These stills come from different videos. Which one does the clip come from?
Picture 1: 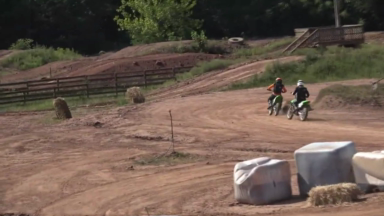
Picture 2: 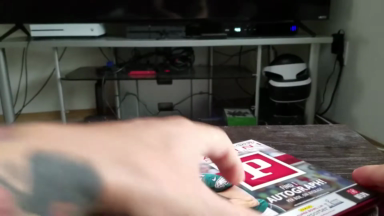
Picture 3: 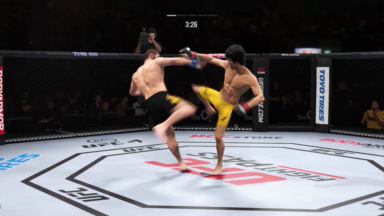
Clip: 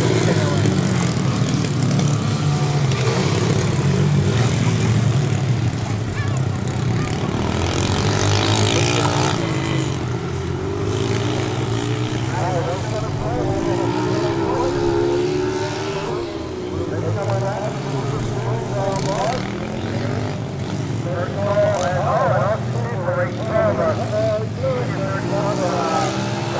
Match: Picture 1